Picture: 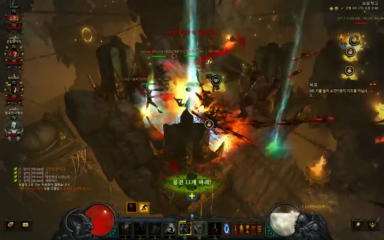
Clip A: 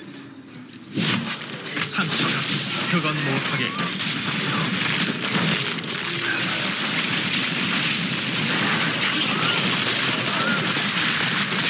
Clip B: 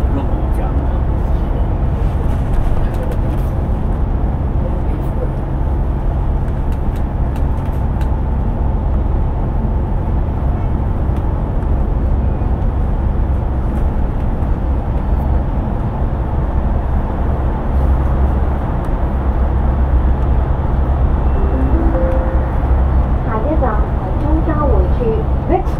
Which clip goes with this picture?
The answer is A